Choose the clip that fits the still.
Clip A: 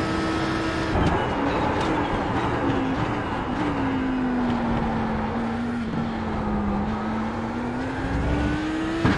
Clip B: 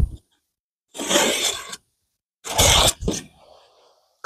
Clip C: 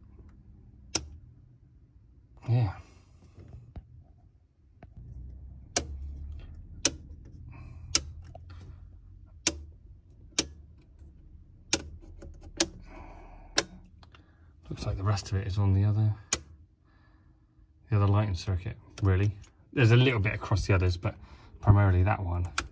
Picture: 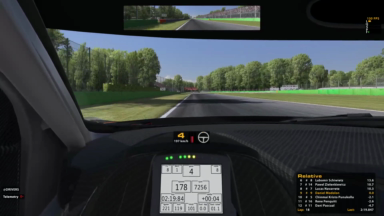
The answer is A